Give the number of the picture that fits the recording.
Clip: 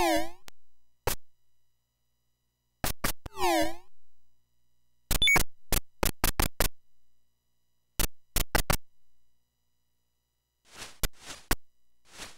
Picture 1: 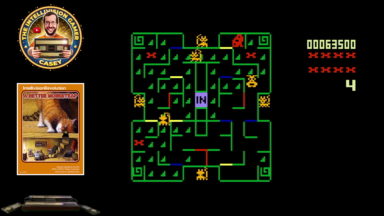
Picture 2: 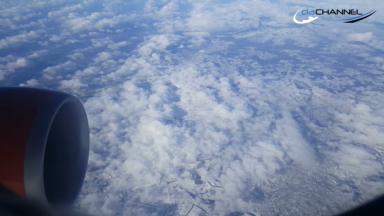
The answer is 1